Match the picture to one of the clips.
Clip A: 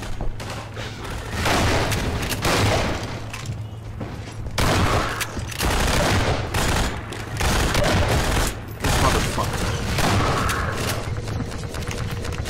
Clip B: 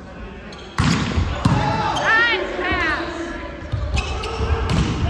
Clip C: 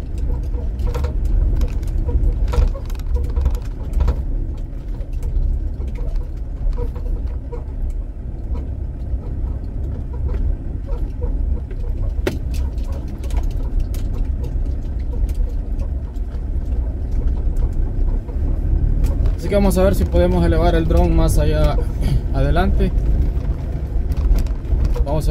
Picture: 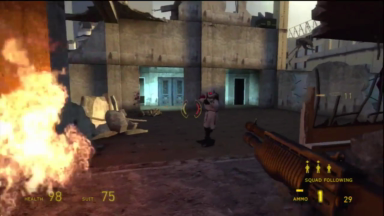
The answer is A